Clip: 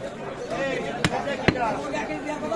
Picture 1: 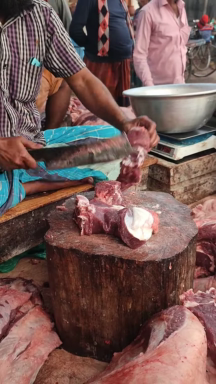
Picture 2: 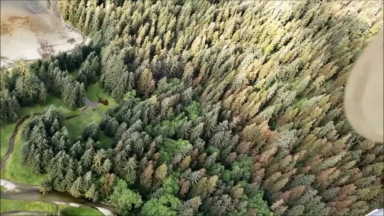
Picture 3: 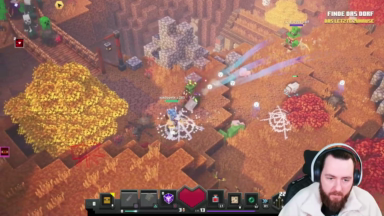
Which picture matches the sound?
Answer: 1